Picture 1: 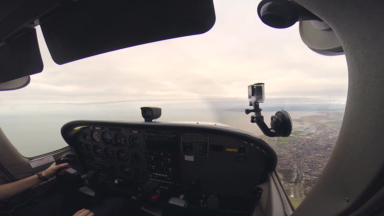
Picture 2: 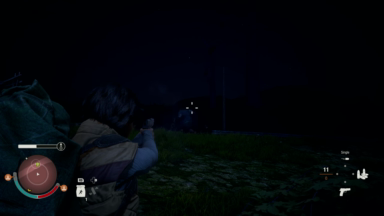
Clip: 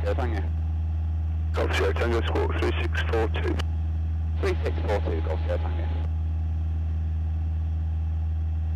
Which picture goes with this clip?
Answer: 1